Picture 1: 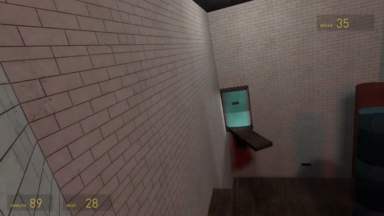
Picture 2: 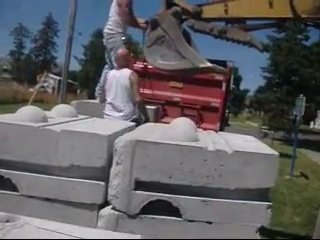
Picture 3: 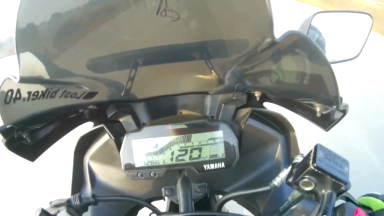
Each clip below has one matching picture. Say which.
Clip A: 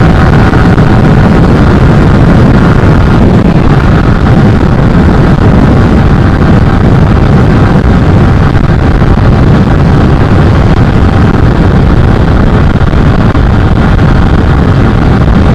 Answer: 3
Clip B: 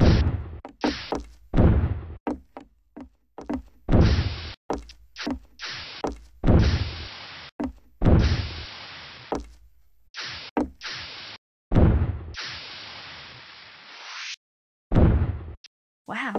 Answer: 1